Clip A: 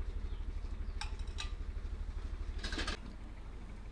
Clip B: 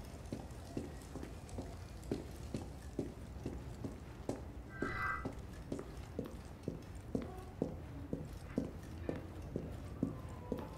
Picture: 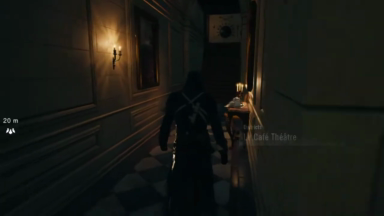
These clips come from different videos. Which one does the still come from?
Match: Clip B